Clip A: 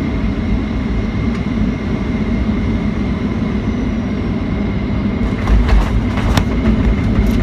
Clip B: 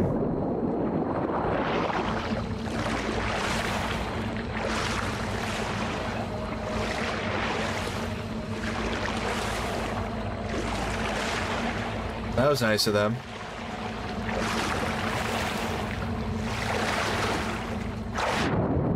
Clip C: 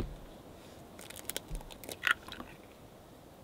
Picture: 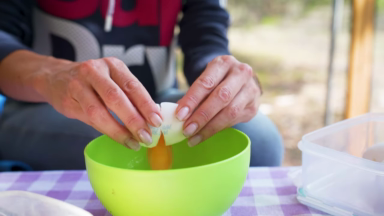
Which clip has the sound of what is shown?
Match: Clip C